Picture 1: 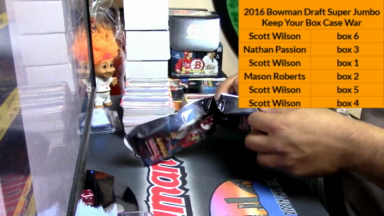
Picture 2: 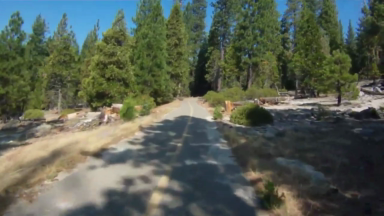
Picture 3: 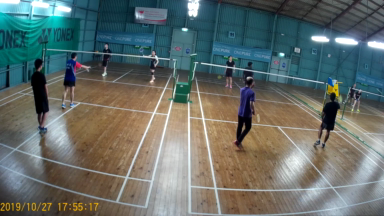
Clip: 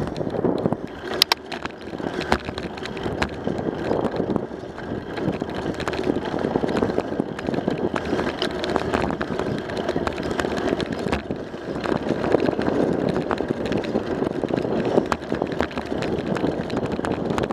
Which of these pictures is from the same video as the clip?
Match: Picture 2